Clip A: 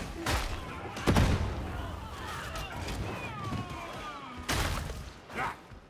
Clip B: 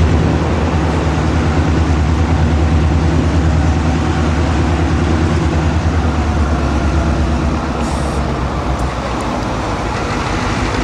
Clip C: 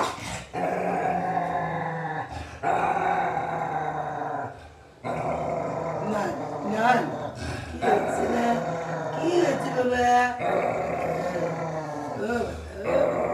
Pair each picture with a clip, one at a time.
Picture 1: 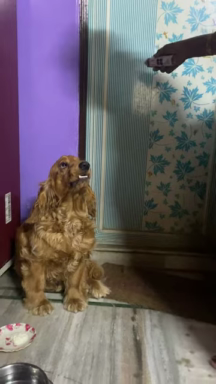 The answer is C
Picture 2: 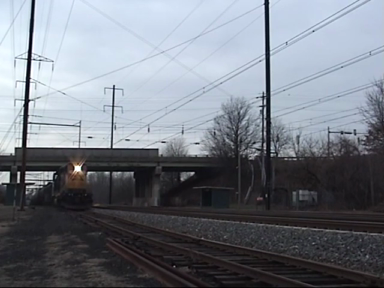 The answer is B